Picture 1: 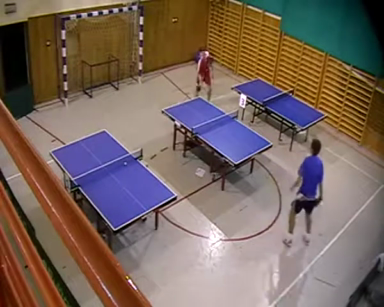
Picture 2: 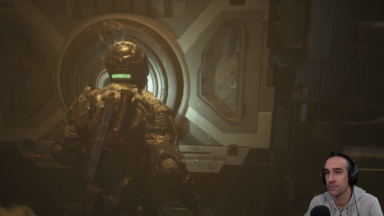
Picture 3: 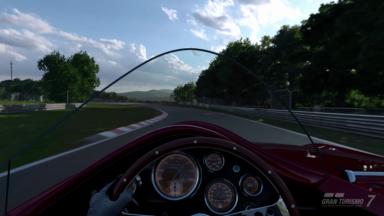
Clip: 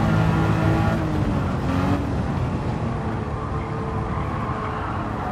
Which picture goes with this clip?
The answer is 3